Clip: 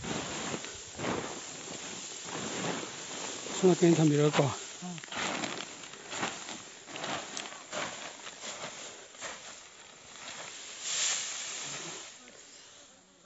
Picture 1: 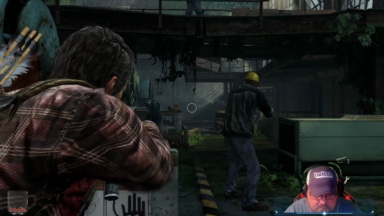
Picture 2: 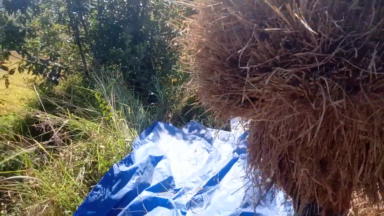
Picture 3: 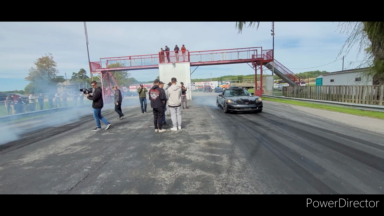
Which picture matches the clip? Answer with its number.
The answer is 2